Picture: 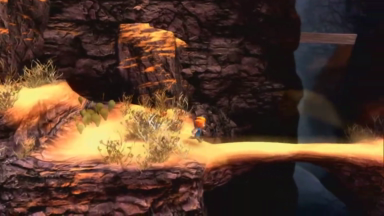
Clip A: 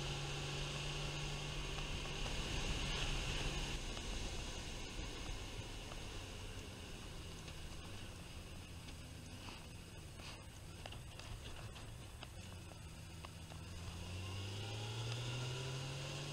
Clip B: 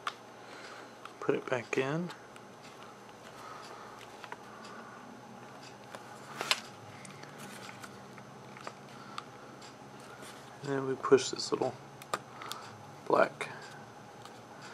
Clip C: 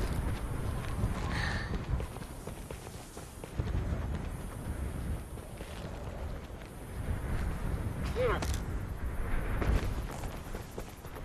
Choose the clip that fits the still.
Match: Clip C